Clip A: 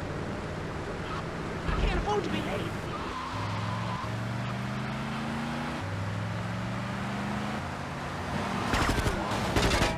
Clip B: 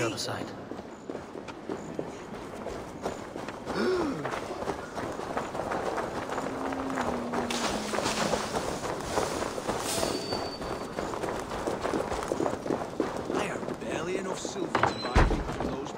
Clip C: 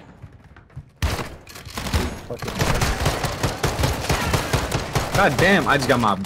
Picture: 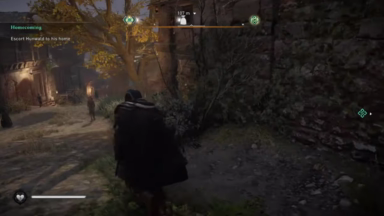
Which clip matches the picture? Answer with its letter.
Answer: B